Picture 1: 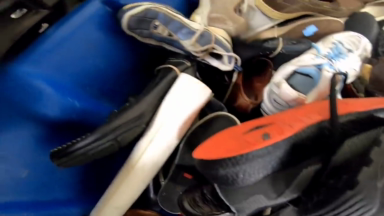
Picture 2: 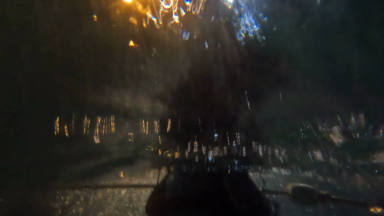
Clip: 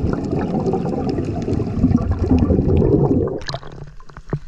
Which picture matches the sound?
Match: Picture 2